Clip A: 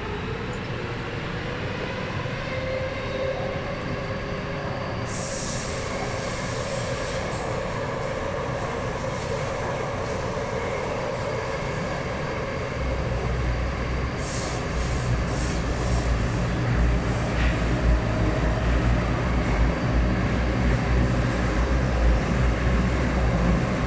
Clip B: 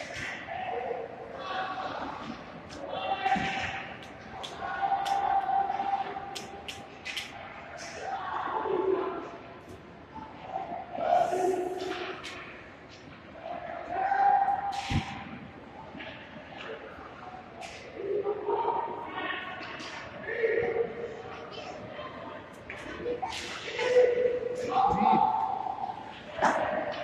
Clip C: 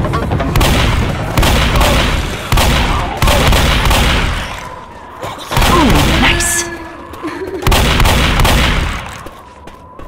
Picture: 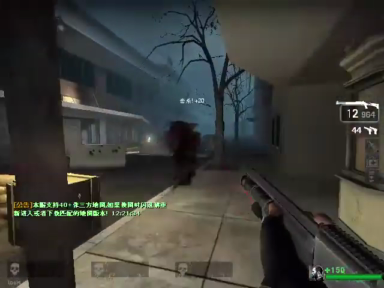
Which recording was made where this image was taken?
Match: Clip C